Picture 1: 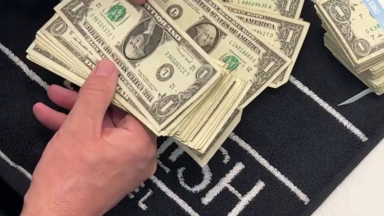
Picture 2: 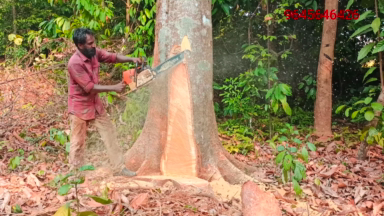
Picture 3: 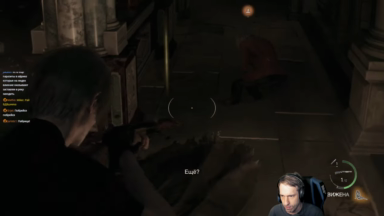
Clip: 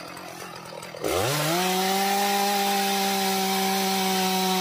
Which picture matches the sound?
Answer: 2